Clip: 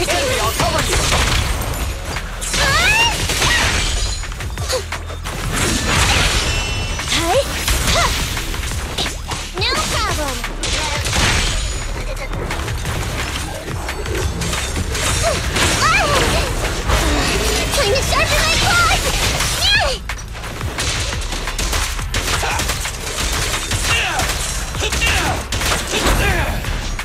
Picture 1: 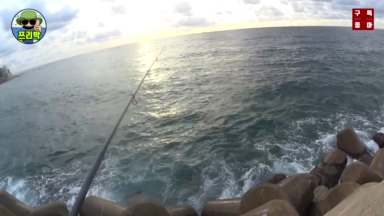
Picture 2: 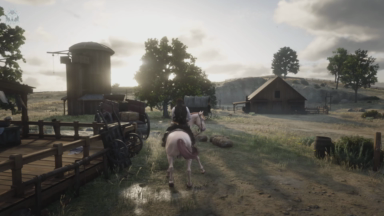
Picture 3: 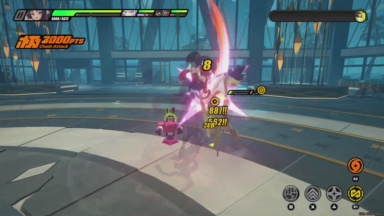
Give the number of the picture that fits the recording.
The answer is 3